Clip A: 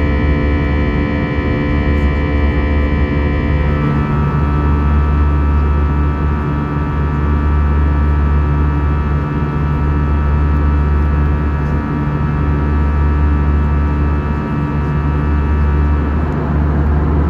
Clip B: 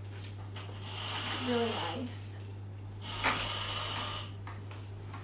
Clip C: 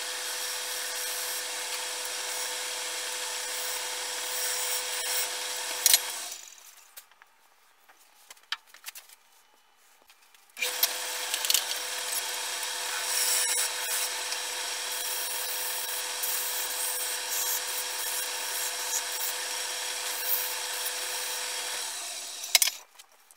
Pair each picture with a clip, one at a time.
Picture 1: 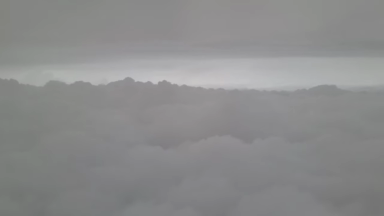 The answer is A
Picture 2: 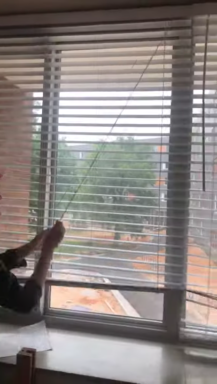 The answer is B